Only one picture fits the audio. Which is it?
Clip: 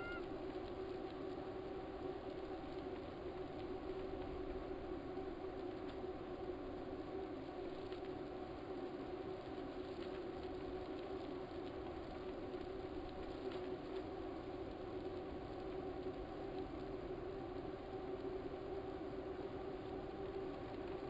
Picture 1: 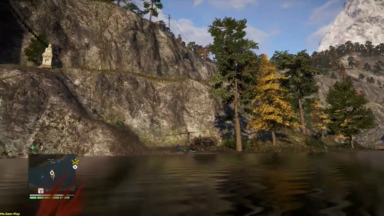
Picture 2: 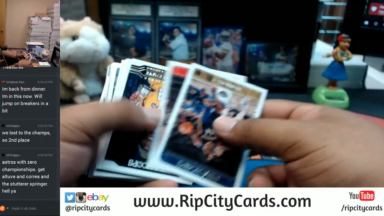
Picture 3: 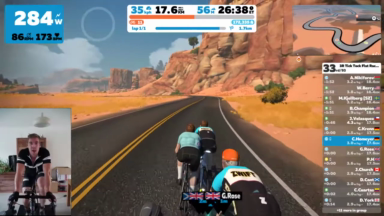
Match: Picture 3